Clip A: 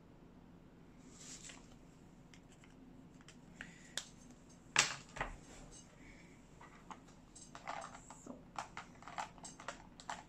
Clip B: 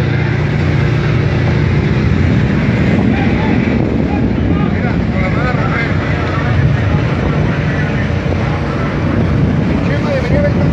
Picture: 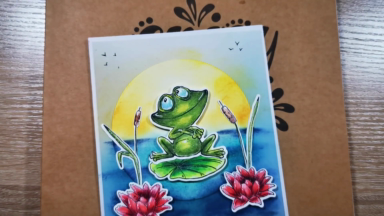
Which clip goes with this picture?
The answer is A